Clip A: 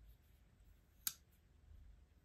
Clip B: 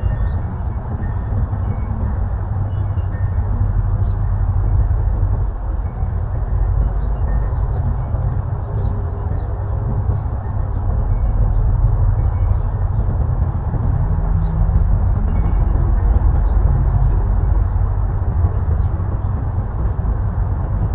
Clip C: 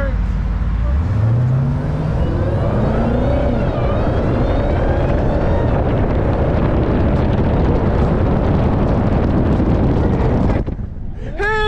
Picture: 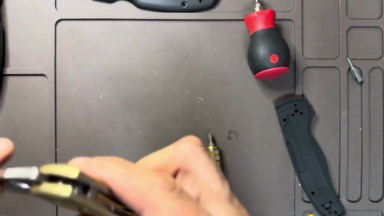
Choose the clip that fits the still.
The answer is A